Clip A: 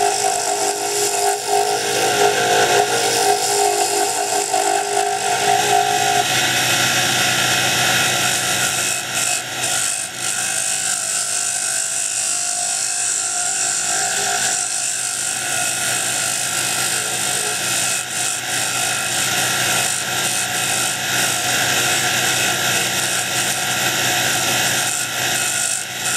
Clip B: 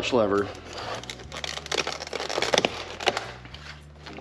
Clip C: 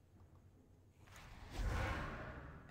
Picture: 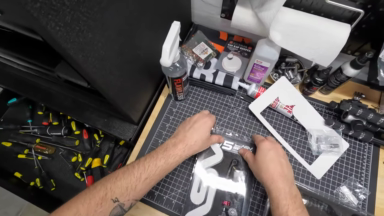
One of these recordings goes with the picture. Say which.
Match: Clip B